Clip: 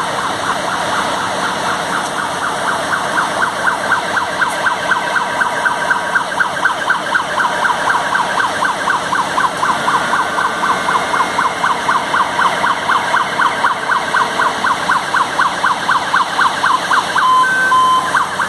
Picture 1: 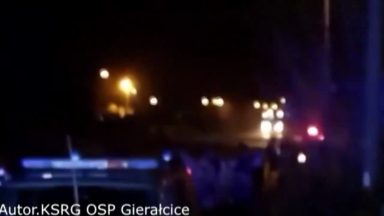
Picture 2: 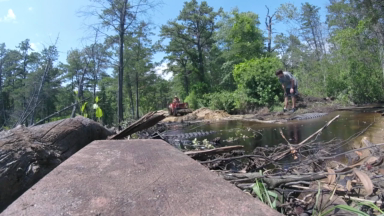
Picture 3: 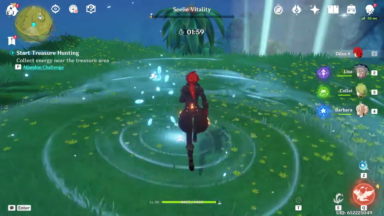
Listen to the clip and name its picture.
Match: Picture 1